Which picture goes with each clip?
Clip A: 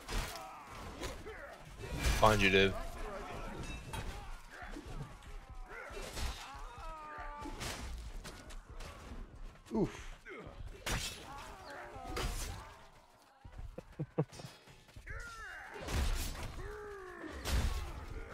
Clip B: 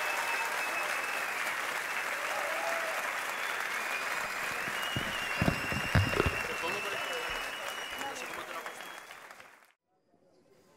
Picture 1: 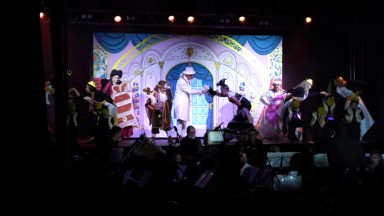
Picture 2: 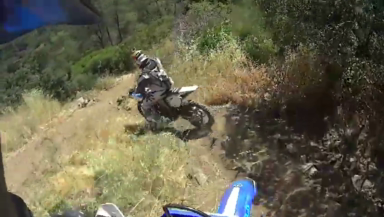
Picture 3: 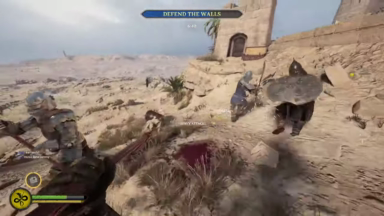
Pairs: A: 3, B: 1